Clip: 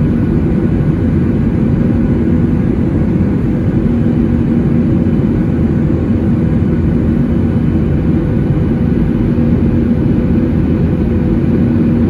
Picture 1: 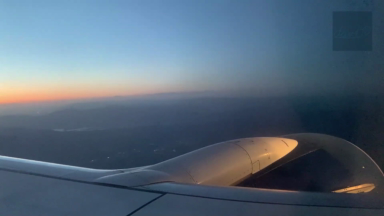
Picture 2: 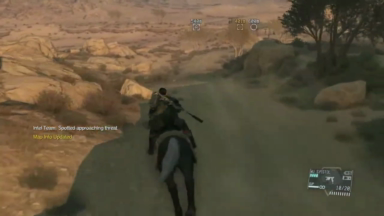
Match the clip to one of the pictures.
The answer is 1